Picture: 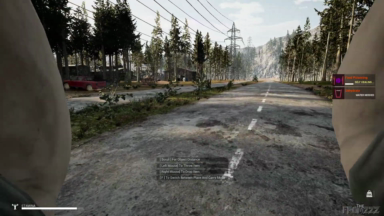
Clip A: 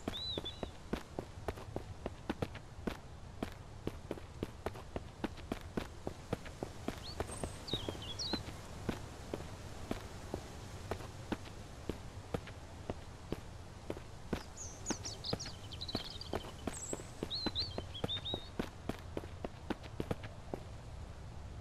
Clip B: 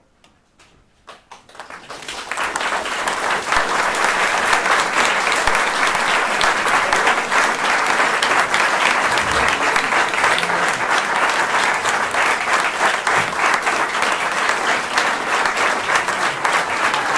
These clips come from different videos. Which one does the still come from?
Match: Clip A